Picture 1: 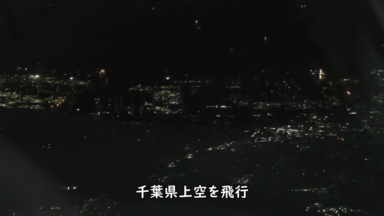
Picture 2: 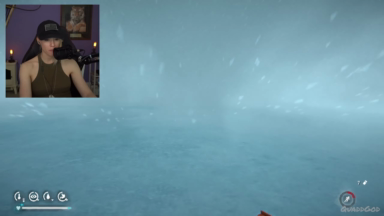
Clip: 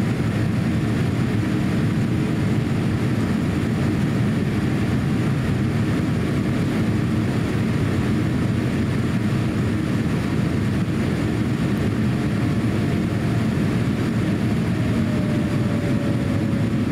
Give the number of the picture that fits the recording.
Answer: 1